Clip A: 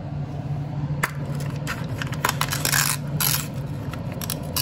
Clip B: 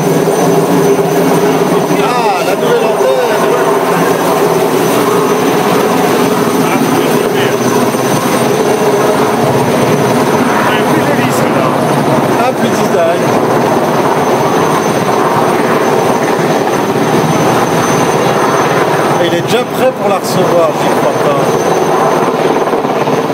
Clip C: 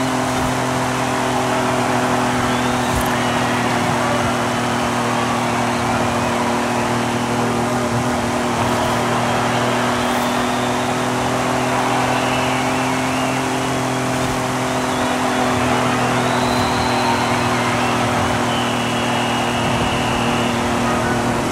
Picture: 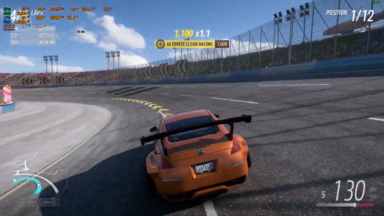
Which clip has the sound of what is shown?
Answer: C